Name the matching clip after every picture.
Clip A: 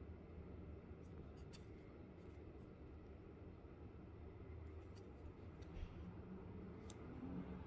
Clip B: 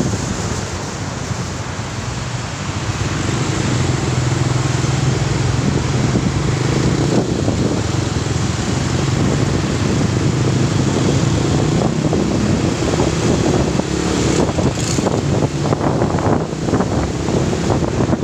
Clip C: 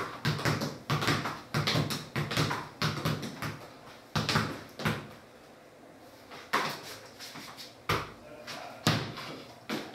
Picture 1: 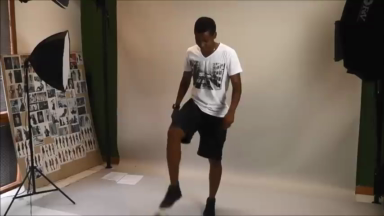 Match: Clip C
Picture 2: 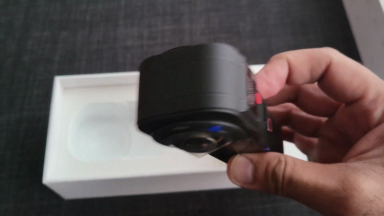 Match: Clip A